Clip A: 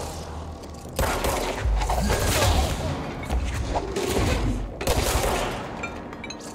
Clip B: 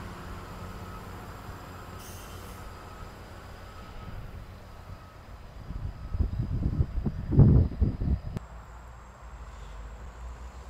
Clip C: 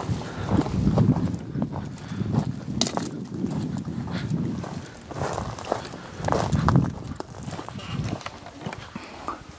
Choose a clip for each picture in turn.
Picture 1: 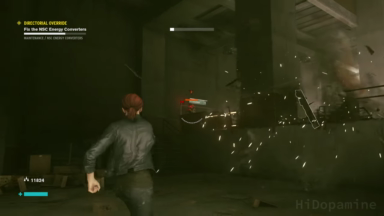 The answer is A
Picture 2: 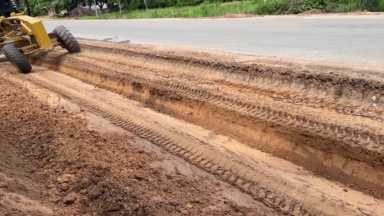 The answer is B